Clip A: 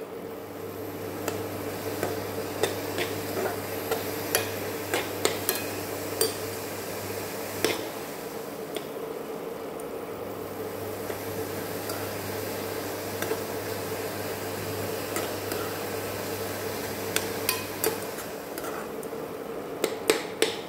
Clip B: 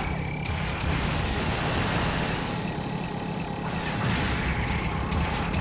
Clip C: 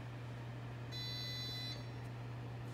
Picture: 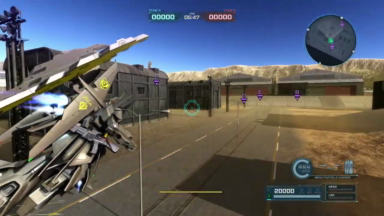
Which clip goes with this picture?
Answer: B